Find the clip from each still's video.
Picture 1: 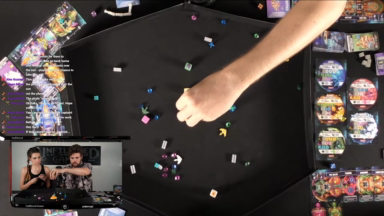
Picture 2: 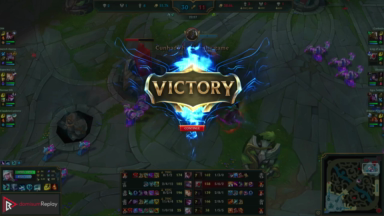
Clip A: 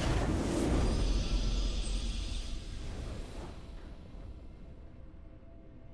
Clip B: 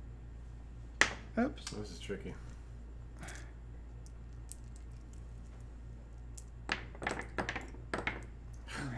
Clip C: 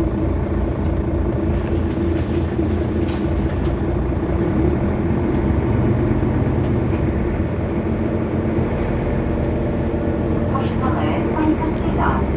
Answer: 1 B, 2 A